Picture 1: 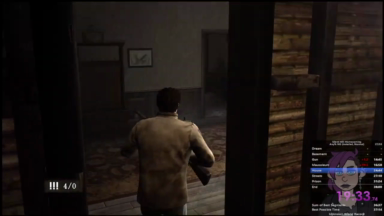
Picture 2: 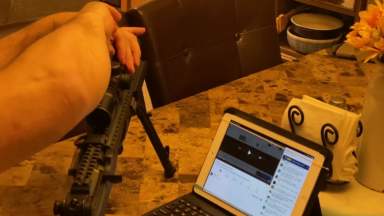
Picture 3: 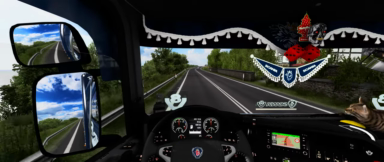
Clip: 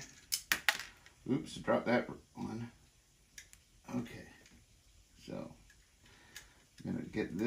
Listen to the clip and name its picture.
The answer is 2